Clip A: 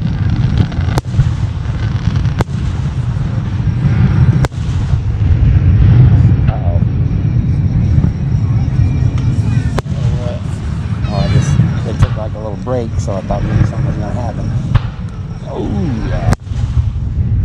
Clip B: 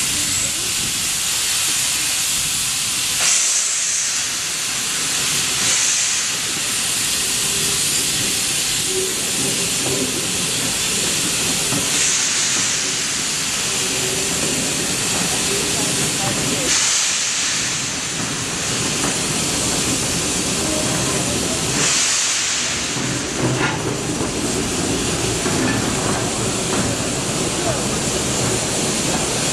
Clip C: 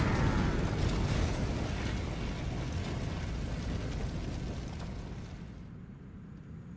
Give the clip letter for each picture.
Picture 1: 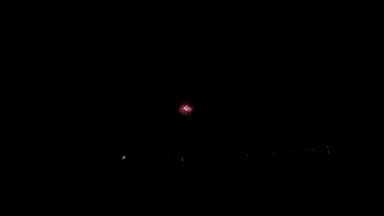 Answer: A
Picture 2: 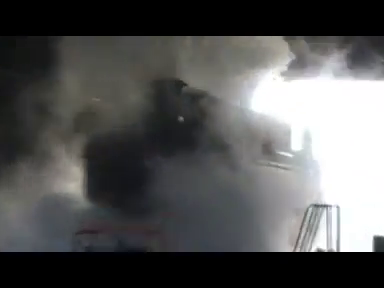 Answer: B